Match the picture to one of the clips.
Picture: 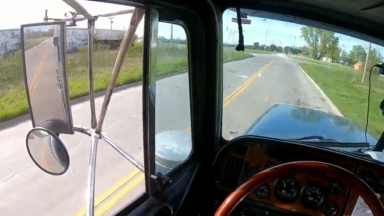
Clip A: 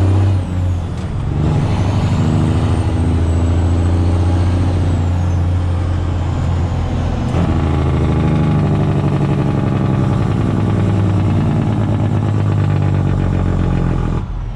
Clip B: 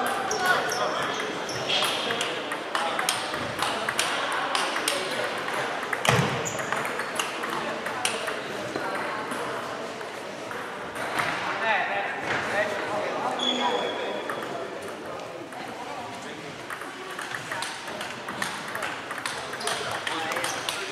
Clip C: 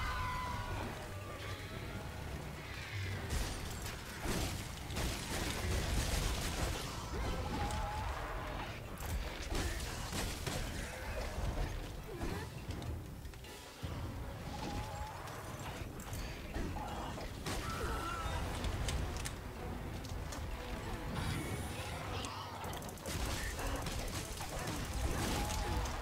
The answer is A